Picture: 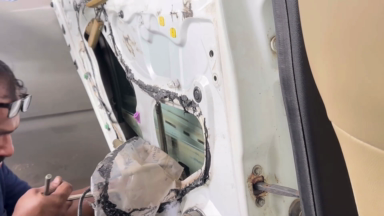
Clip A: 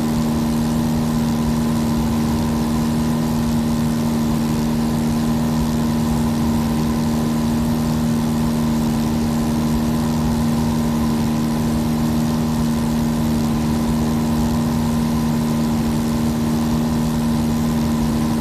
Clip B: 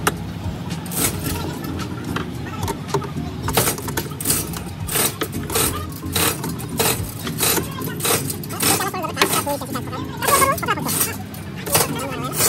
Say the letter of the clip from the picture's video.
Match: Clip B